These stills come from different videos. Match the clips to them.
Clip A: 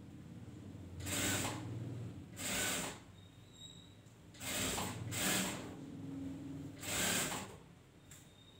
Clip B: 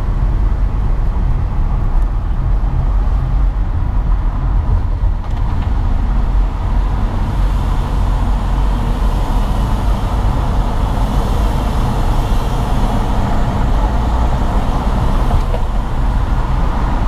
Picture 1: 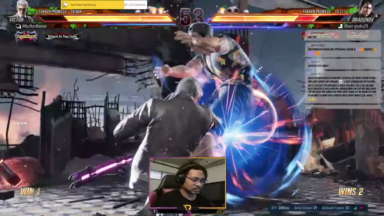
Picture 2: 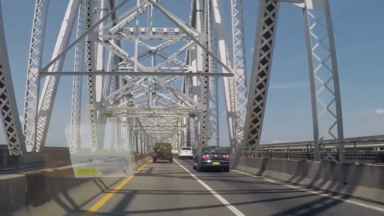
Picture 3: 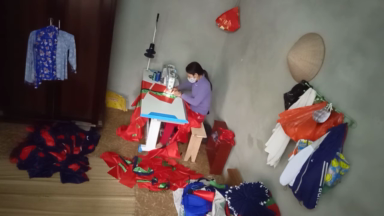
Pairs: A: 3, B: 2